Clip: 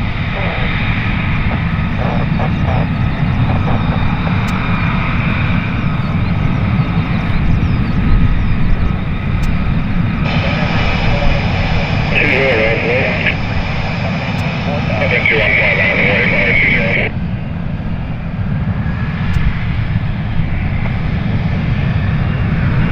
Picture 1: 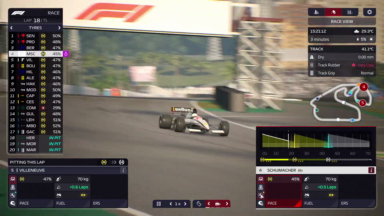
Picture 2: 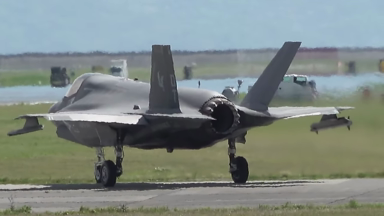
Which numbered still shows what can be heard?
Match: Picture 2